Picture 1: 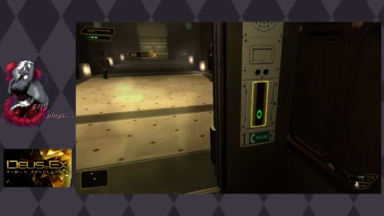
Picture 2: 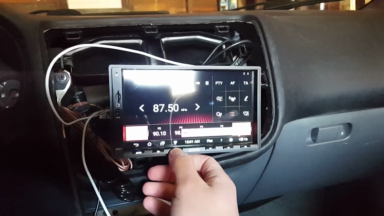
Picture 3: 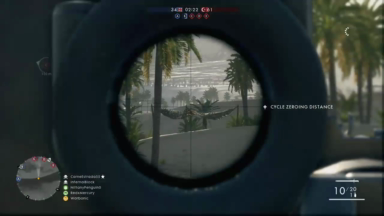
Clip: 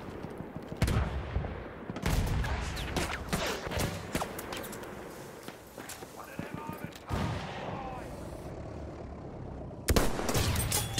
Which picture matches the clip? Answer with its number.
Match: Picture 3